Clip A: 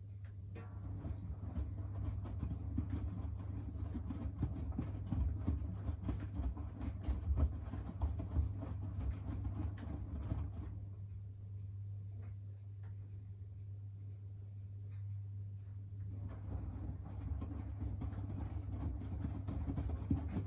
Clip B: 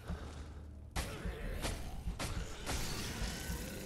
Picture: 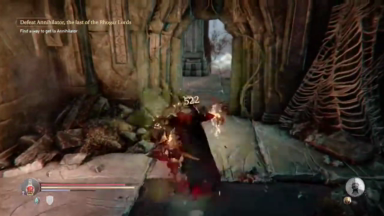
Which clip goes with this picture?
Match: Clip B